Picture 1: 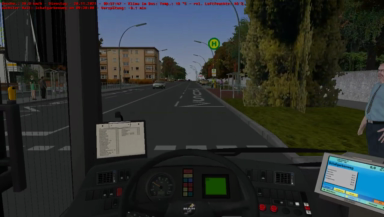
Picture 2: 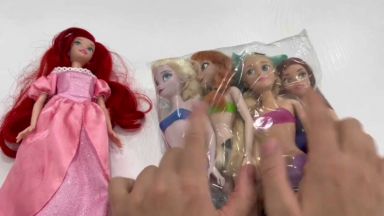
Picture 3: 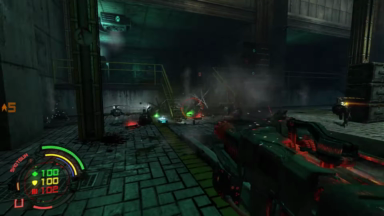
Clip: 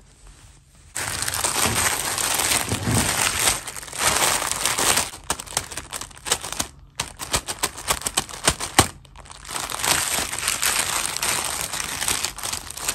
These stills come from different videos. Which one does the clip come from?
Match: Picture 2